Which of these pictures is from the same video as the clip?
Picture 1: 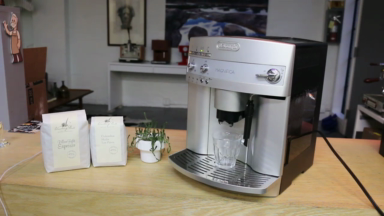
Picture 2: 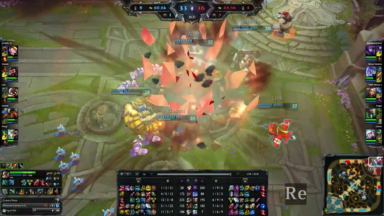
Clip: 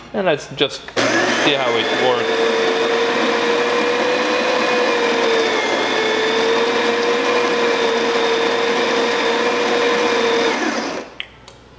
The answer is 1